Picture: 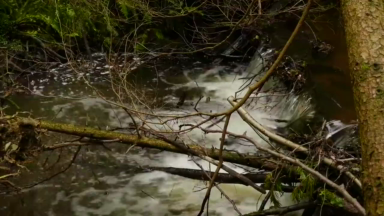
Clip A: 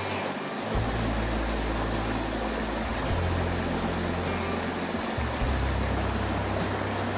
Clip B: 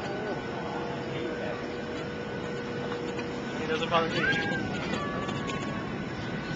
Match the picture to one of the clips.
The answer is A